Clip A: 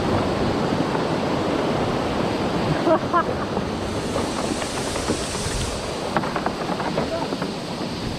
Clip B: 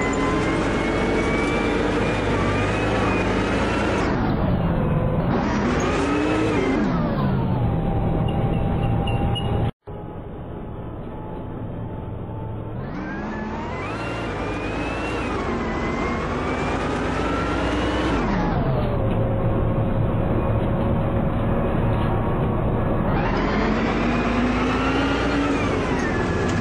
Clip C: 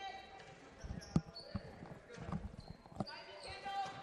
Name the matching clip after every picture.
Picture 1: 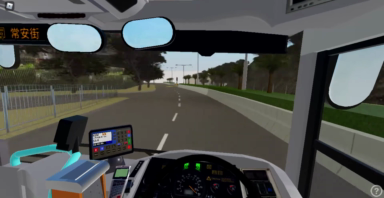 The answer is B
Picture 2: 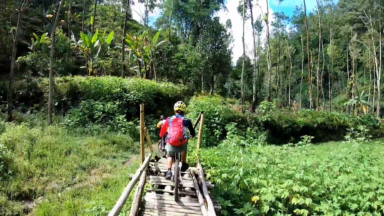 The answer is A